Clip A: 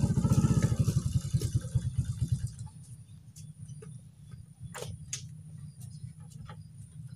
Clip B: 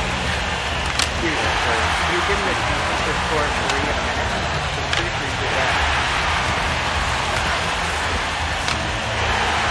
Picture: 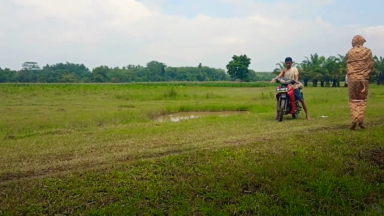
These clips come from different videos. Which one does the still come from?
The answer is A